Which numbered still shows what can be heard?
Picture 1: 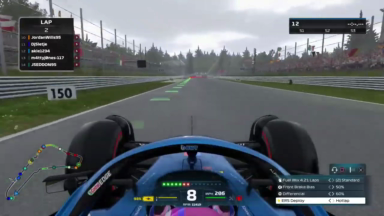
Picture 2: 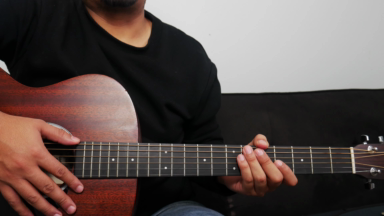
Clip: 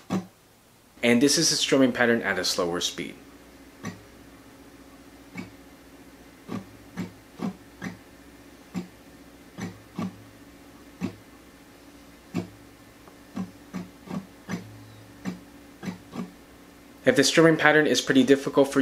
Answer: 2